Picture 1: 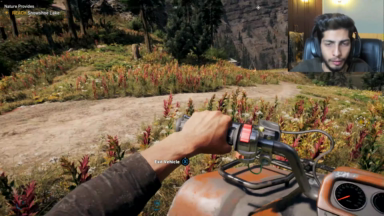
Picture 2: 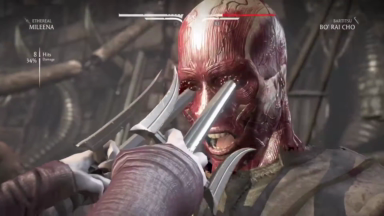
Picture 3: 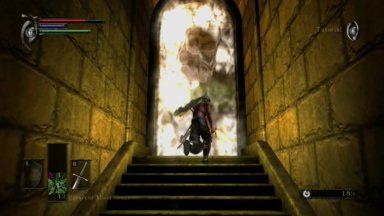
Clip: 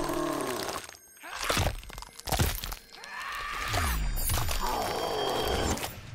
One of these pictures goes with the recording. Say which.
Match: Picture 2